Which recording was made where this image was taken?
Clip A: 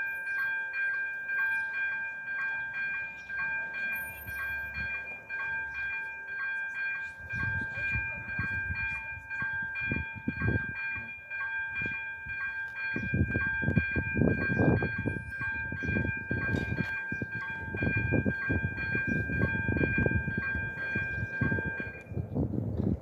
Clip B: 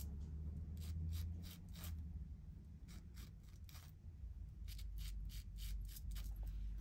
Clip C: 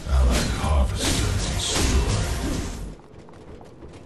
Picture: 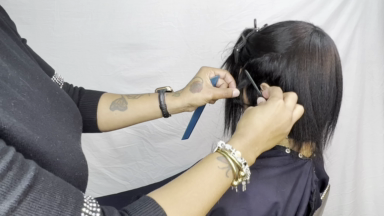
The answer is B